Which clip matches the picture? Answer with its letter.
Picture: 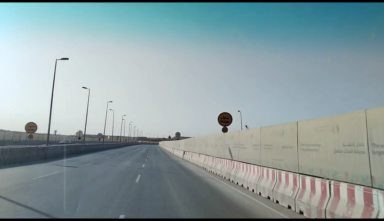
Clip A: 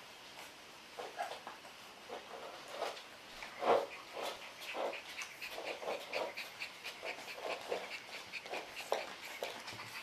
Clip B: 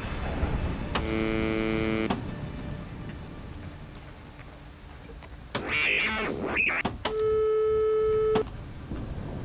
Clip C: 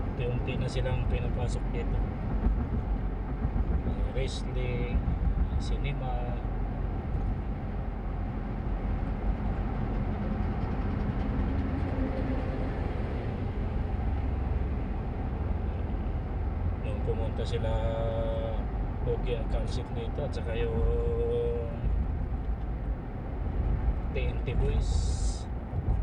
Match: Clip C